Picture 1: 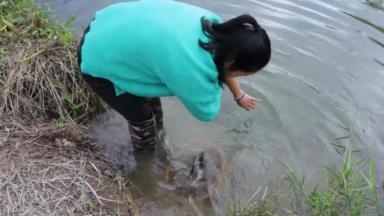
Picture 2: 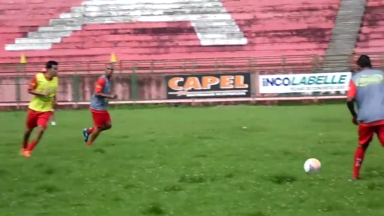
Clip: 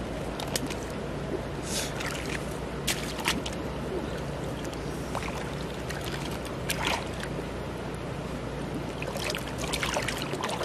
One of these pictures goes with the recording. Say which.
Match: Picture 1